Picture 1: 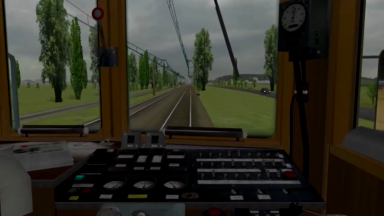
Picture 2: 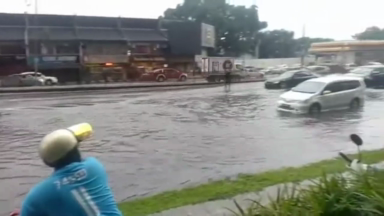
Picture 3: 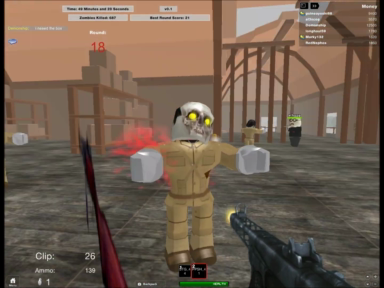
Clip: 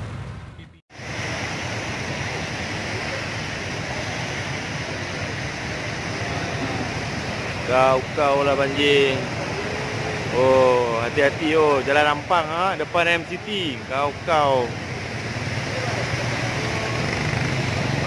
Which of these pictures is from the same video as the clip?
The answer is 2